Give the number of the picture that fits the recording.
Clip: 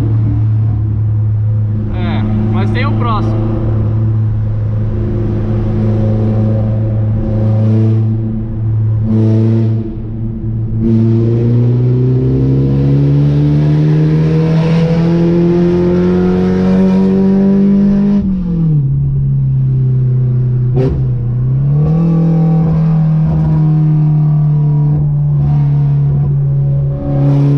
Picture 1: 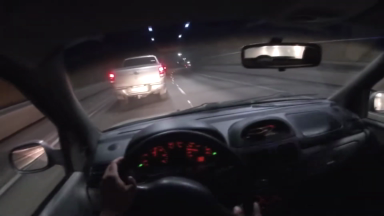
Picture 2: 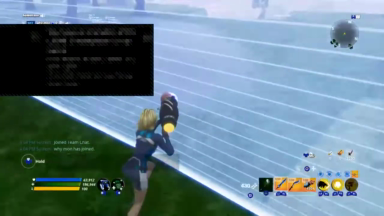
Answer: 1